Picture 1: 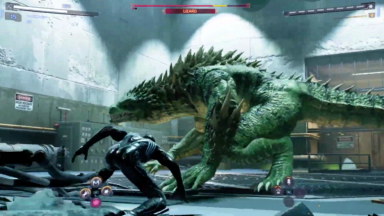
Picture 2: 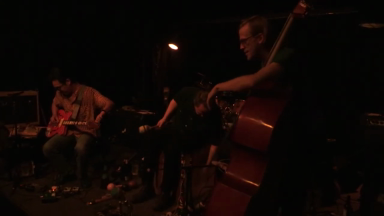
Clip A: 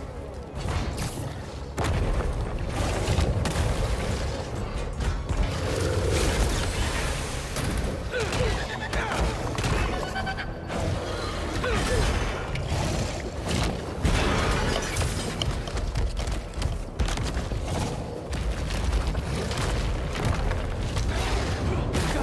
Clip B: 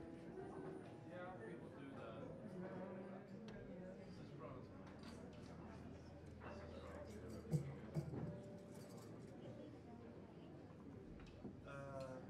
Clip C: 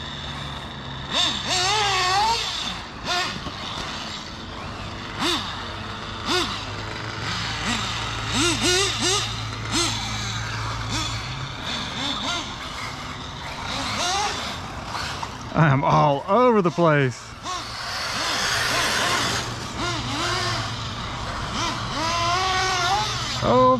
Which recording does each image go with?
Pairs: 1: A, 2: B